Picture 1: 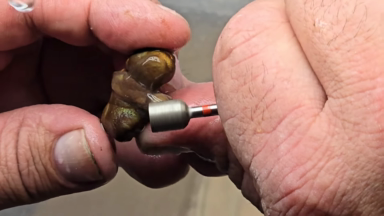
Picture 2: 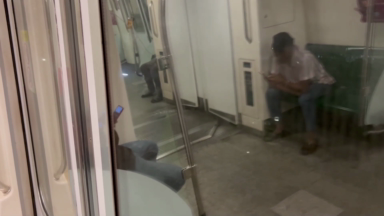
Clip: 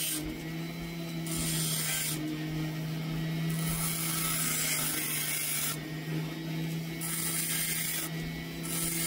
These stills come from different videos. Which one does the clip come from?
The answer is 1